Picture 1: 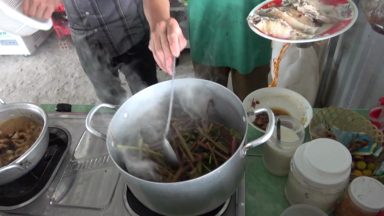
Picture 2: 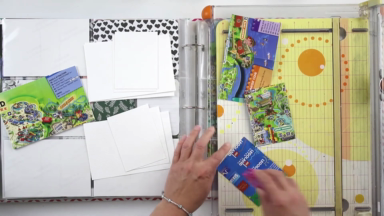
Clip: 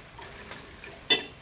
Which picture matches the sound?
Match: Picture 1